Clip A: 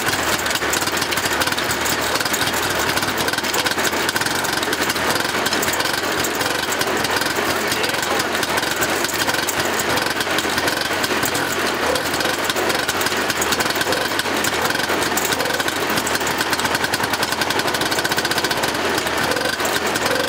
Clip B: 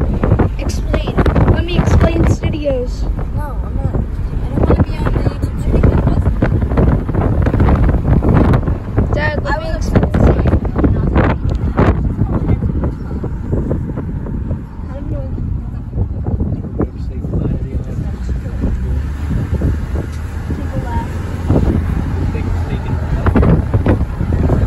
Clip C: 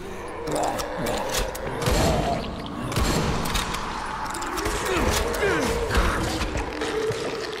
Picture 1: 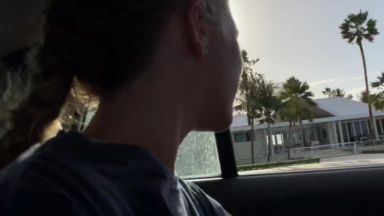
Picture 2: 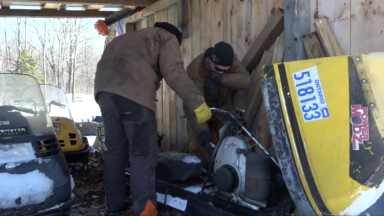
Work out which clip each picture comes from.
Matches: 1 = B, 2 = A